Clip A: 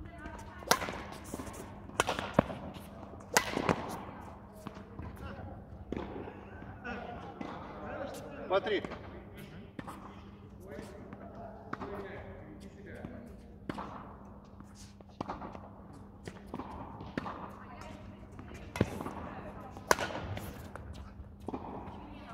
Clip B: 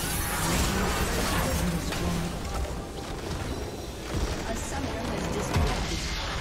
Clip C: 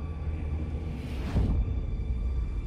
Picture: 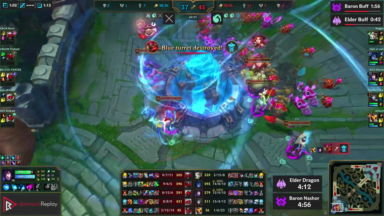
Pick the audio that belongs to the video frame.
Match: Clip B